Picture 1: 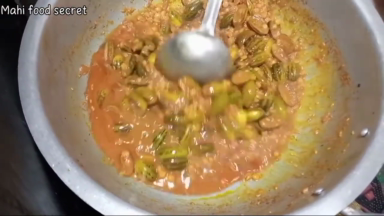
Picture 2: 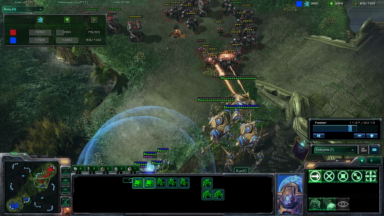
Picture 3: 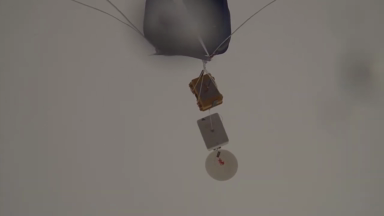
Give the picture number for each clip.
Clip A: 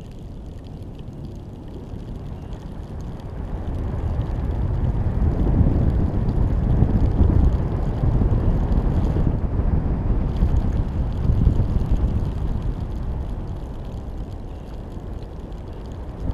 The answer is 3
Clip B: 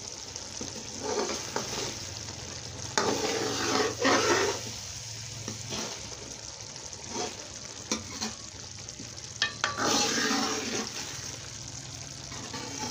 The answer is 1